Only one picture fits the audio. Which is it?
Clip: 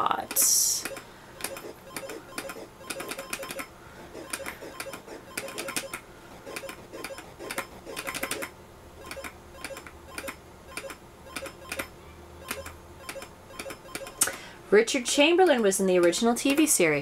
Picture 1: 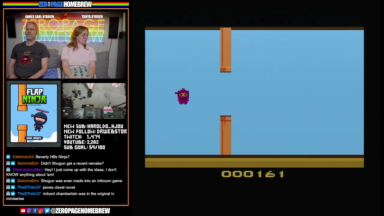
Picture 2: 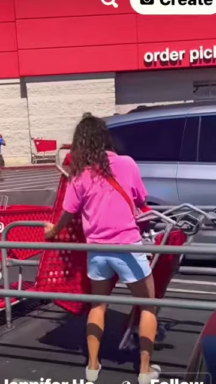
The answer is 1